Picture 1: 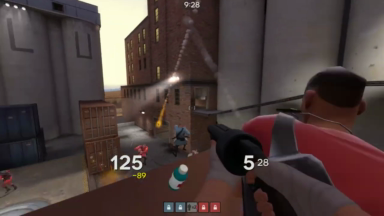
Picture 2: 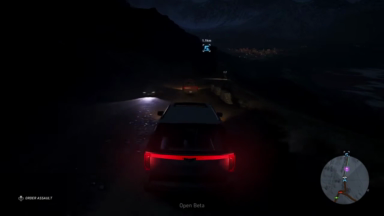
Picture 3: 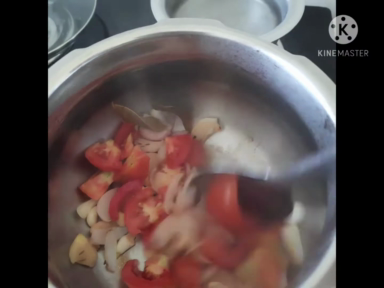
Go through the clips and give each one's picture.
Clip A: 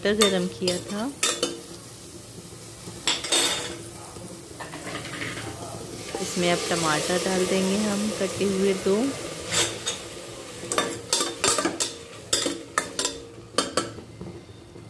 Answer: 3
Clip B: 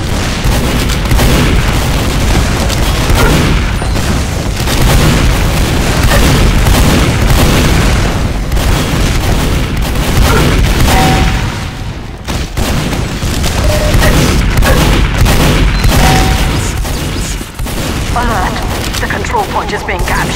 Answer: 1